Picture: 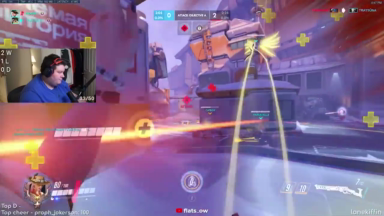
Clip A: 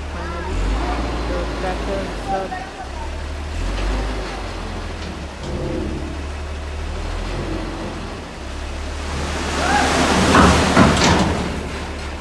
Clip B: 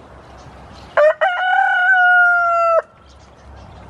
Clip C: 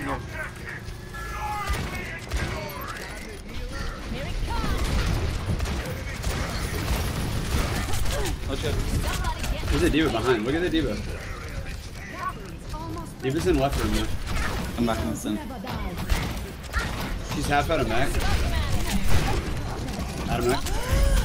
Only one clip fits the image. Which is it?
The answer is C